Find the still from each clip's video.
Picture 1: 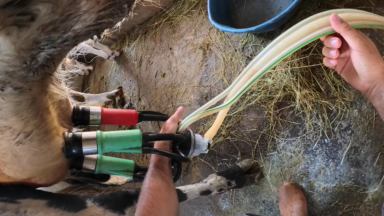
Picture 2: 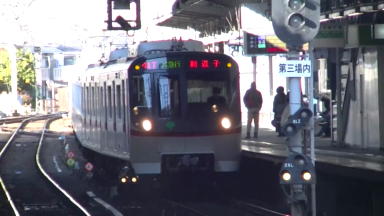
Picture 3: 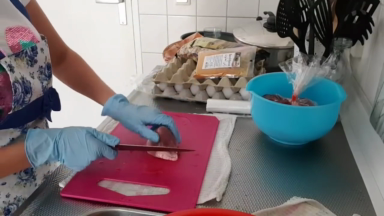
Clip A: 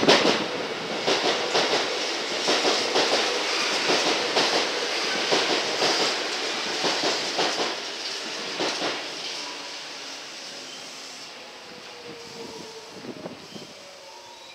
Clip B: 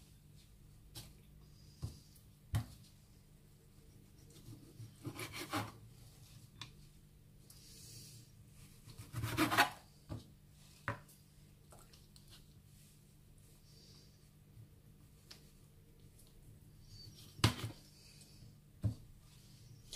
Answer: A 2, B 3